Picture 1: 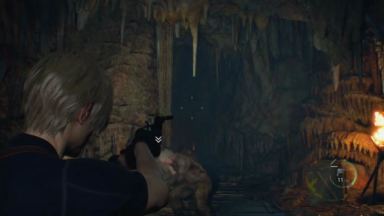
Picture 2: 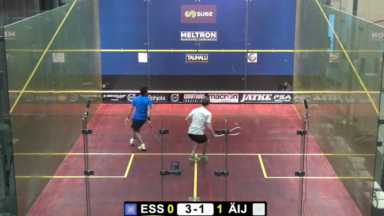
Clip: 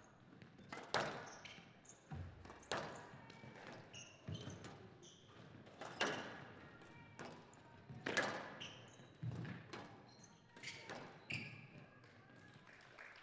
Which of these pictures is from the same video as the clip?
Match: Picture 2